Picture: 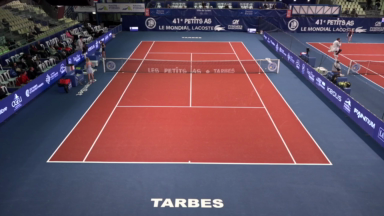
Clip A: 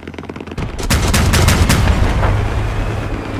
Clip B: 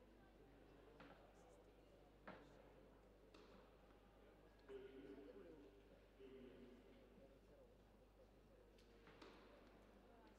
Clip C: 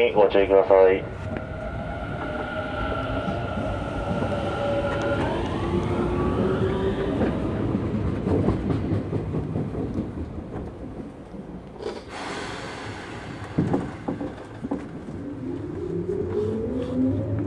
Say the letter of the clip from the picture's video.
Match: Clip B